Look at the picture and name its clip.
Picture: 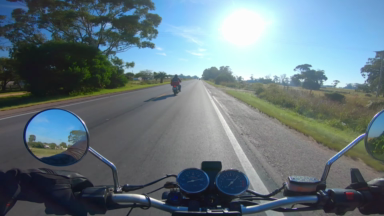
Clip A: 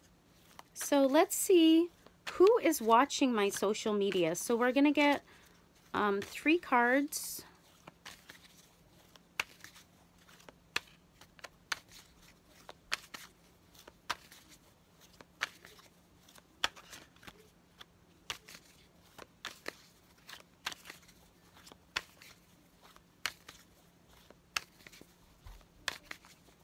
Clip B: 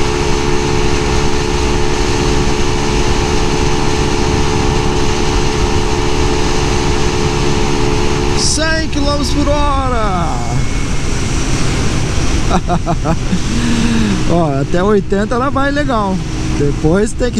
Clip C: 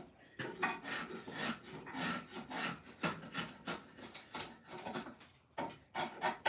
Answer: B